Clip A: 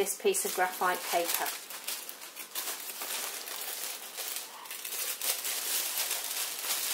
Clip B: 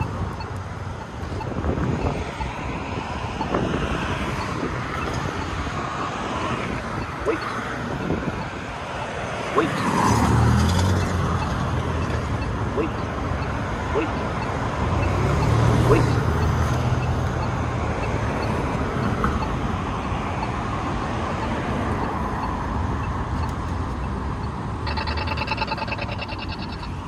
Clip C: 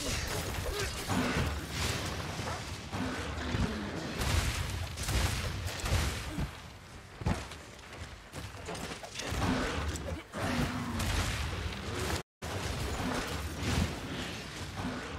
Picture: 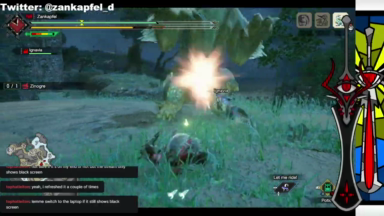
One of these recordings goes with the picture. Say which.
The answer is C